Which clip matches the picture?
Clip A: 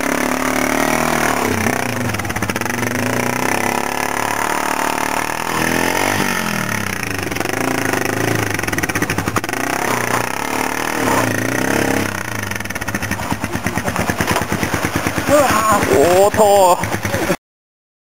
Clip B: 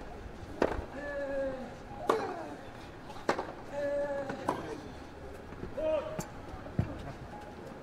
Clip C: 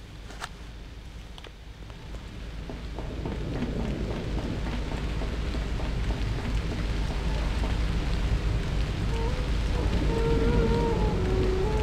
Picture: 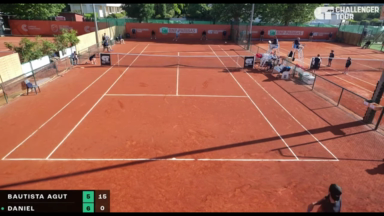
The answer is B